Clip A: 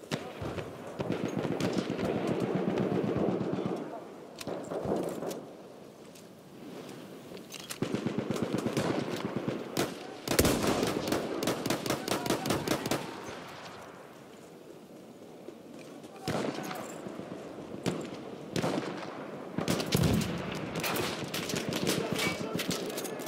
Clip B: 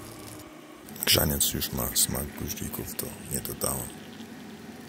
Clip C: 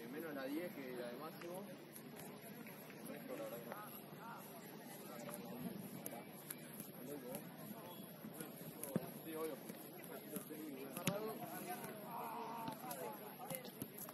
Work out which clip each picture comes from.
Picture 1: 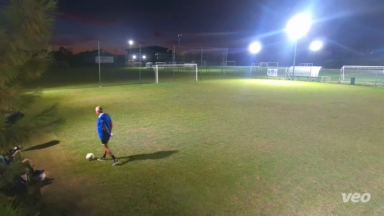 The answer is C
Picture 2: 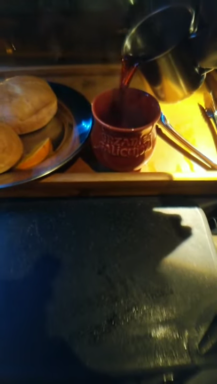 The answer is B